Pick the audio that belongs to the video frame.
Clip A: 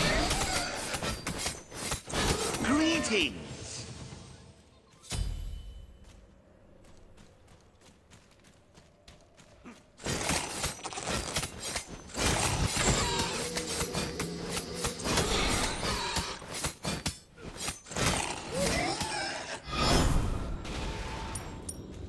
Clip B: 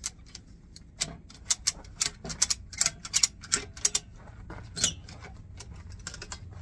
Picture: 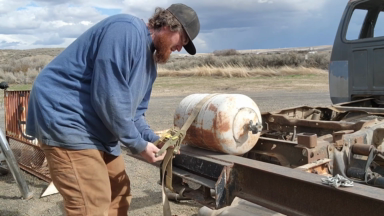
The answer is B